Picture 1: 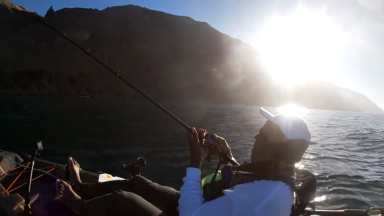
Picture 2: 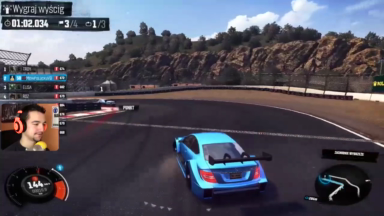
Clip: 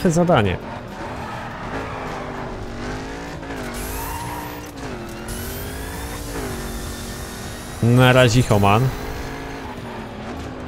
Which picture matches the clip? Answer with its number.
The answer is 2